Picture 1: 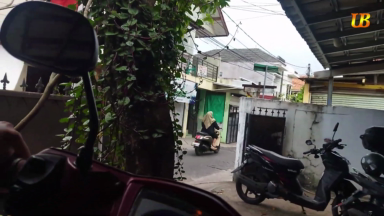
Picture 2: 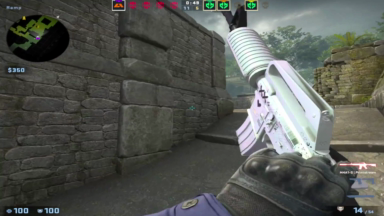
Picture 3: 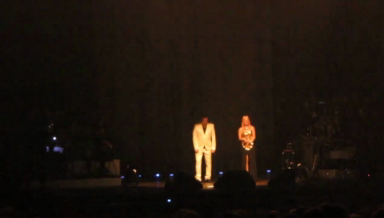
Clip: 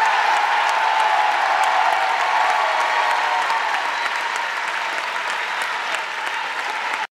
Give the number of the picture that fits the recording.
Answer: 3